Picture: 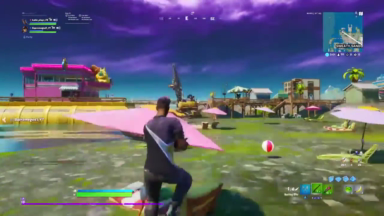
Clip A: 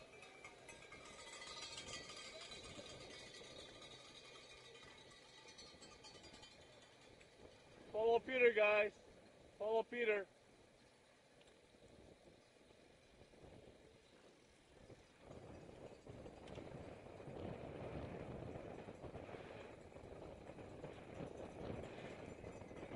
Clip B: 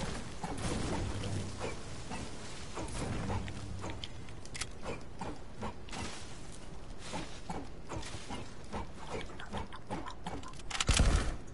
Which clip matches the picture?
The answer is B